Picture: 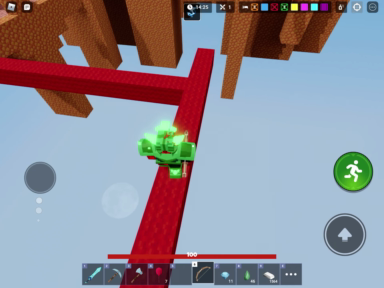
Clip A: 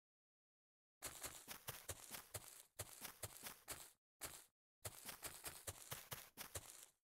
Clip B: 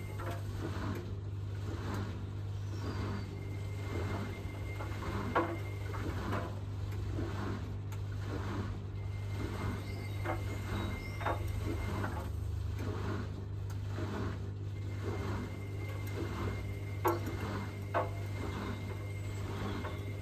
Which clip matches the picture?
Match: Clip A